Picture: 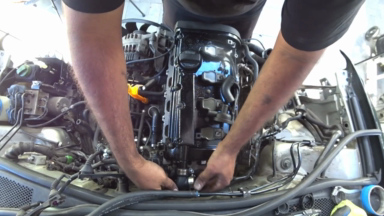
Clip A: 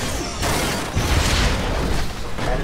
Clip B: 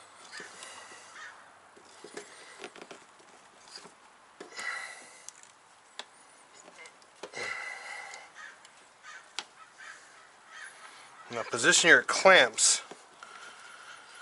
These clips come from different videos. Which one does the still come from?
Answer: B